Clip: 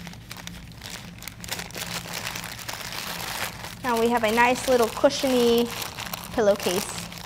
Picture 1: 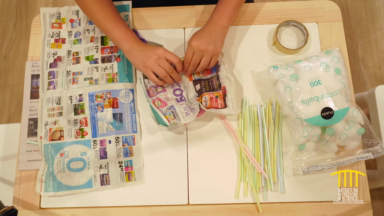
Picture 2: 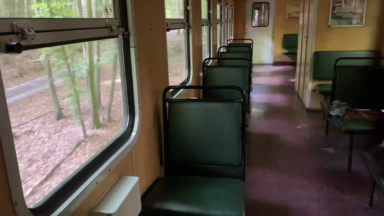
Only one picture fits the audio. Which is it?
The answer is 1